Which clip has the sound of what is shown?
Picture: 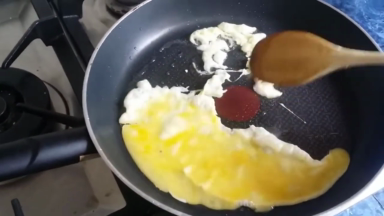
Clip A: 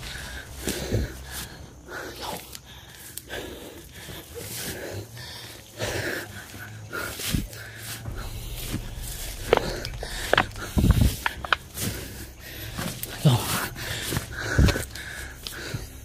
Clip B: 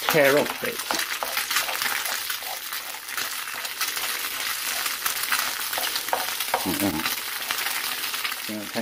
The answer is B